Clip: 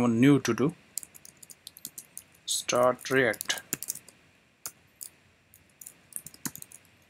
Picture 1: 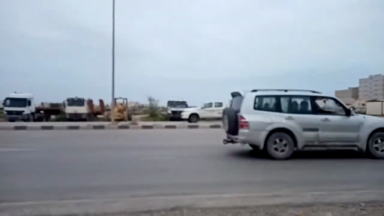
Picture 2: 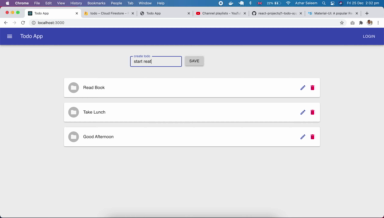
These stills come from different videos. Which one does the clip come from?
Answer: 2